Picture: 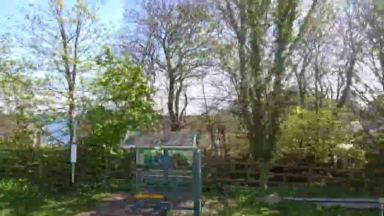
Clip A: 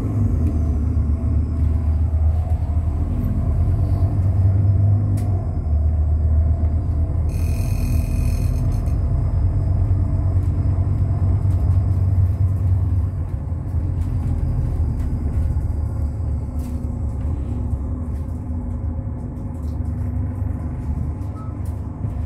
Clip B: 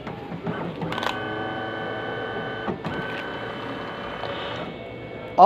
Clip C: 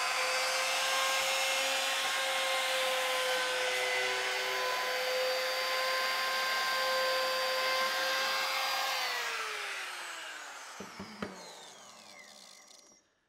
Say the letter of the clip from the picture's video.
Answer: A